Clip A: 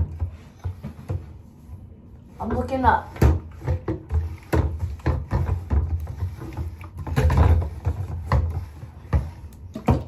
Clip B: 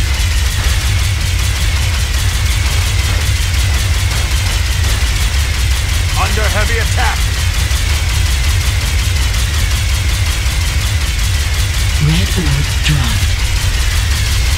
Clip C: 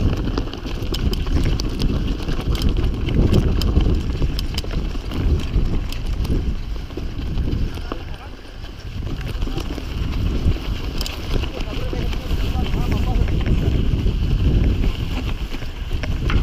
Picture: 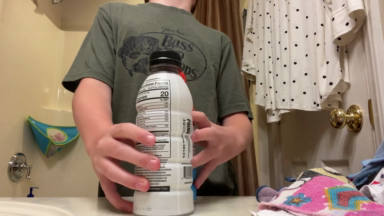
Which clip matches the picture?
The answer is A